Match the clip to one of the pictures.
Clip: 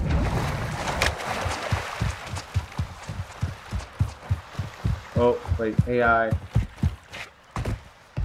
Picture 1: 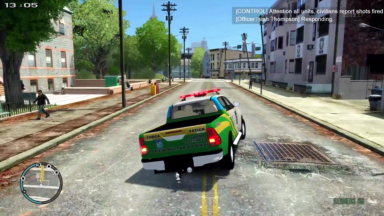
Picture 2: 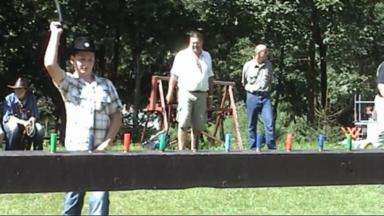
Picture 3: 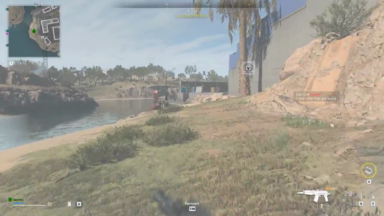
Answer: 3